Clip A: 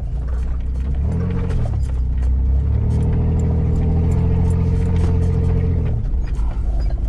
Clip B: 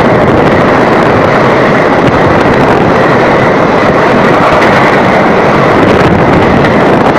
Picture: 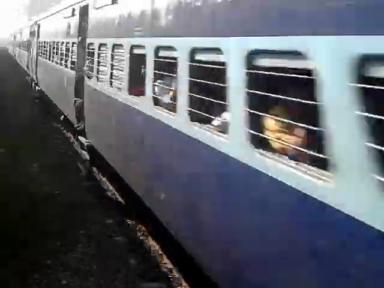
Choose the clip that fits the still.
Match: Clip B